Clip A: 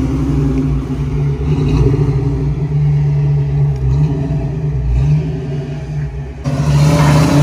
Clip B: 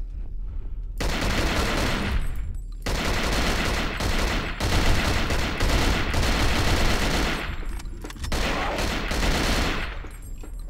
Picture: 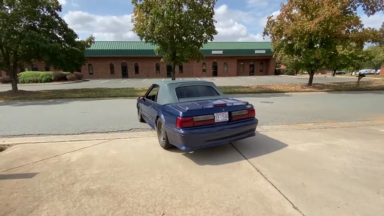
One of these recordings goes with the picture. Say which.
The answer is A